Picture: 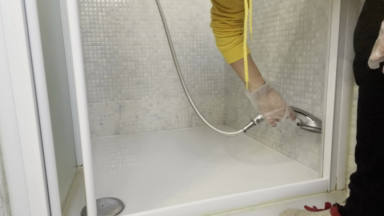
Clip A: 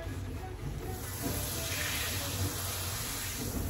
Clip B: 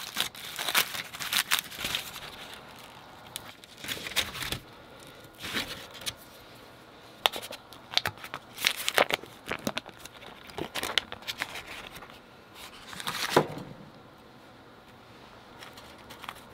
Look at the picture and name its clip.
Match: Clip A